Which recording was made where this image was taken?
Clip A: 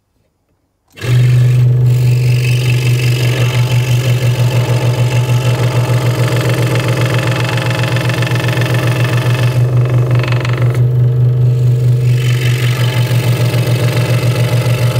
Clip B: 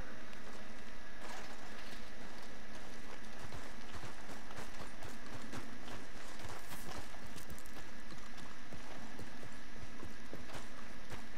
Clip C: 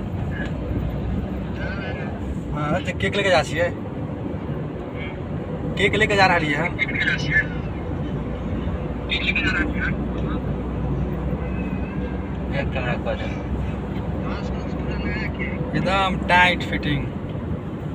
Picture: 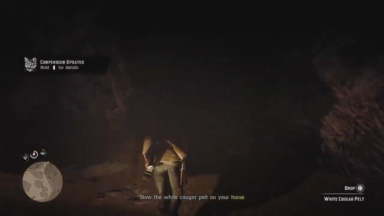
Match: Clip B